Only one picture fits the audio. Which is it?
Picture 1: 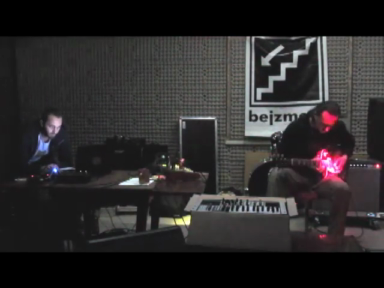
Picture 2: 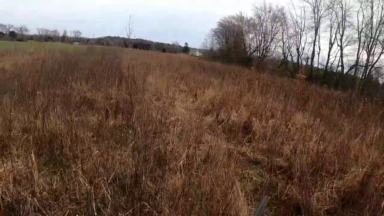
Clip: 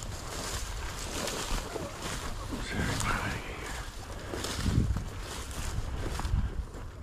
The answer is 2